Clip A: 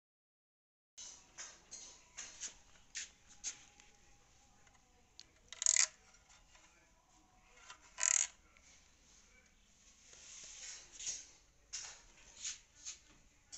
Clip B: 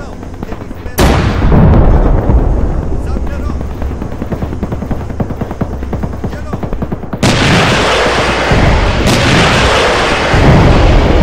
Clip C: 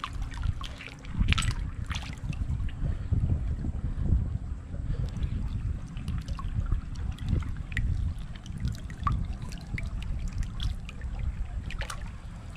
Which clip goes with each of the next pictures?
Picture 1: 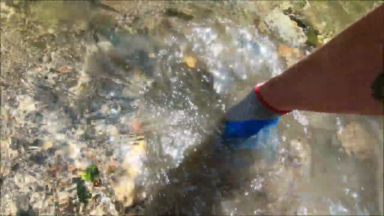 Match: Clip C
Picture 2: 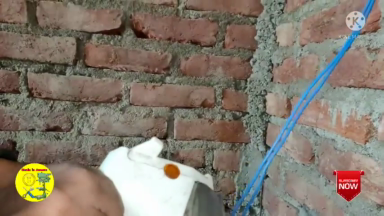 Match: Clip A